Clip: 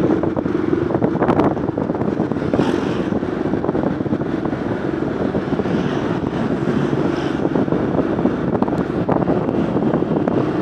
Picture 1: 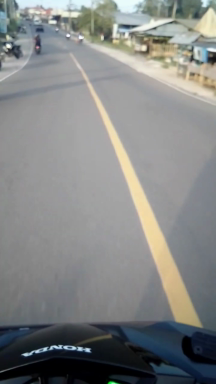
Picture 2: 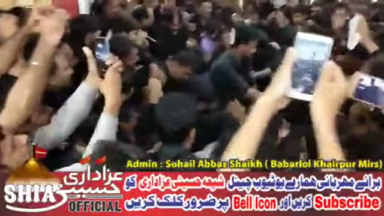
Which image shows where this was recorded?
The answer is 1